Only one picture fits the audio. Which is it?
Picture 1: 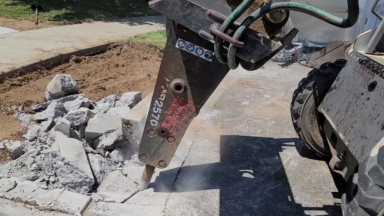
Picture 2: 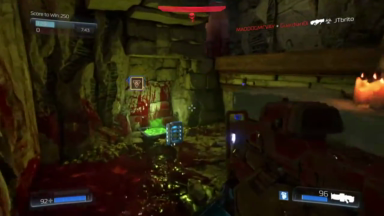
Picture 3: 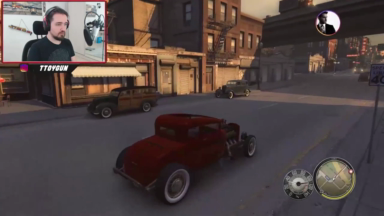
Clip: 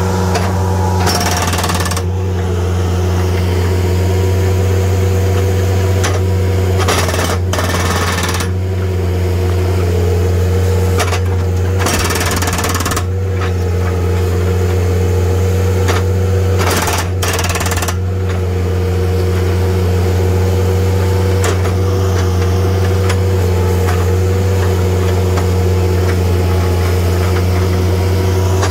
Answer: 1